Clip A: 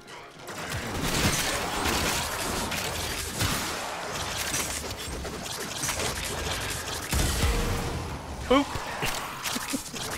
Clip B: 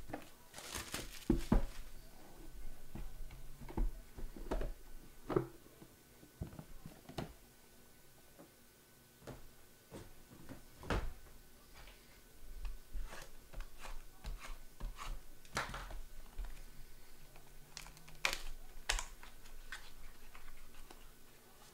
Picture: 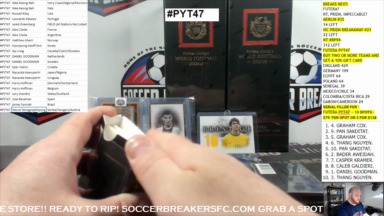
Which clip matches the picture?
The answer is B